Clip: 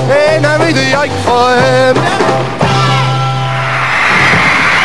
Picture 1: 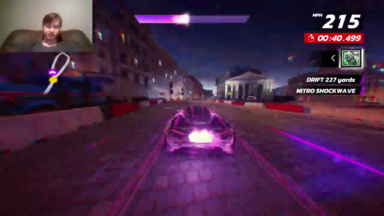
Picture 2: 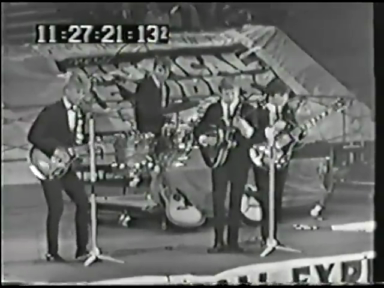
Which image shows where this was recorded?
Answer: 2